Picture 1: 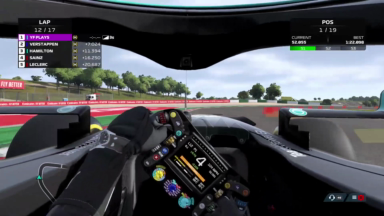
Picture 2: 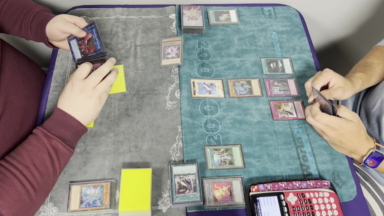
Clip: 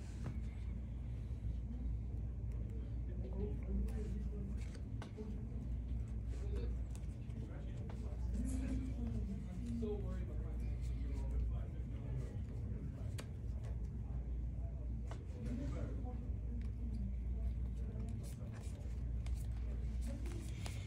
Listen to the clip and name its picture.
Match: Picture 2